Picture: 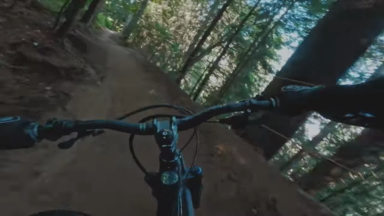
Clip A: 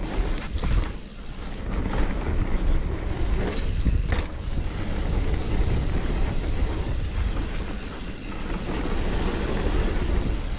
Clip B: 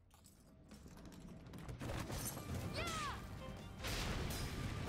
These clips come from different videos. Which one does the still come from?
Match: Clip A